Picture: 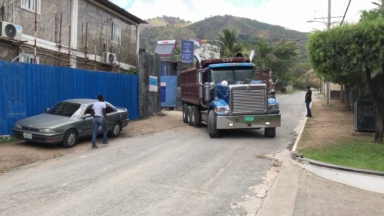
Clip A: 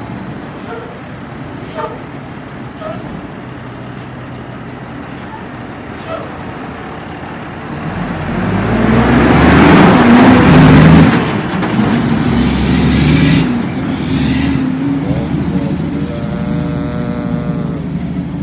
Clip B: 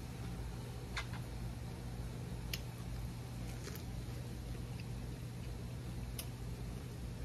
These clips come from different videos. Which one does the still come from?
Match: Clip A